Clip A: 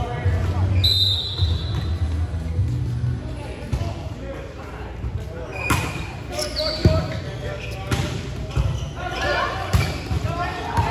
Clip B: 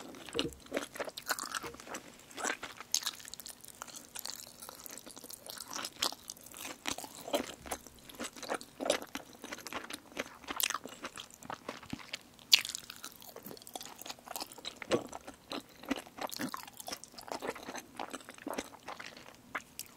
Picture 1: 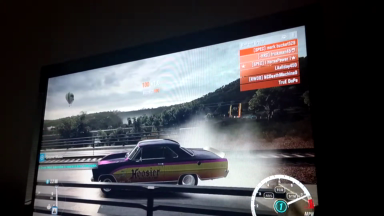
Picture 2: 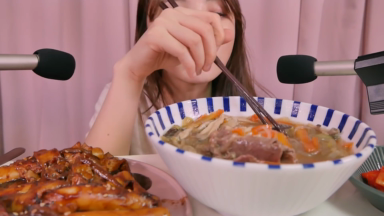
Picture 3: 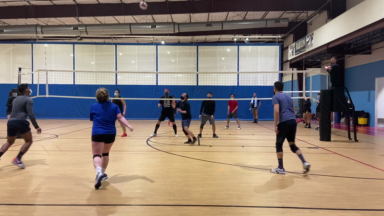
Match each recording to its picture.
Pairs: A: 3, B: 2